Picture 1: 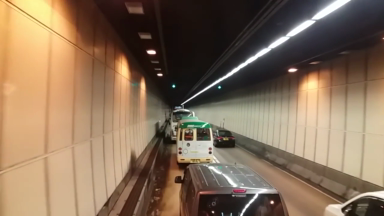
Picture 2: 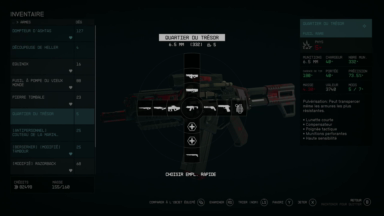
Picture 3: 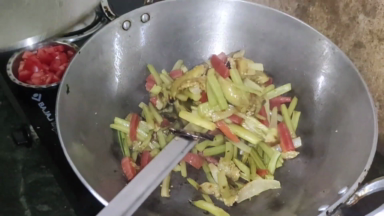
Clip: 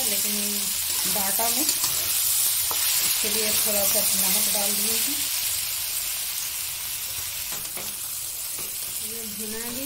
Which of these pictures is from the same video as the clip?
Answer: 3